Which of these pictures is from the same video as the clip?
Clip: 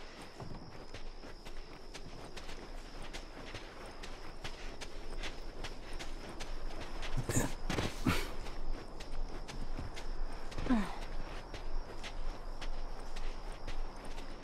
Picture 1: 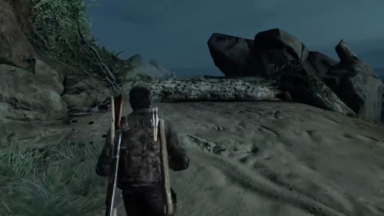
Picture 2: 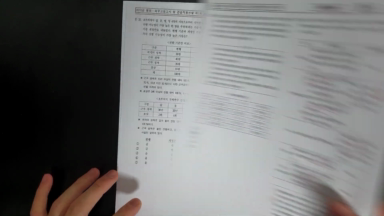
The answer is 1